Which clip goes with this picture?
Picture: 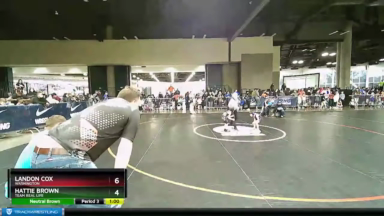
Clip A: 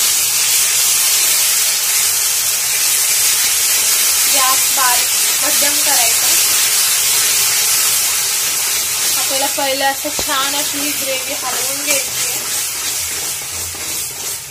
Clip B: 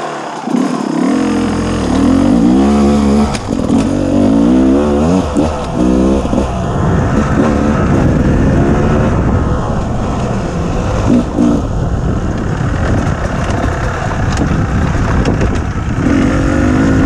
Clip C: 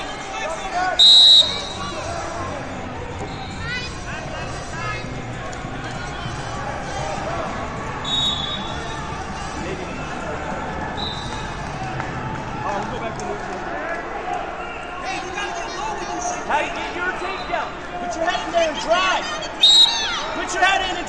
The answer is C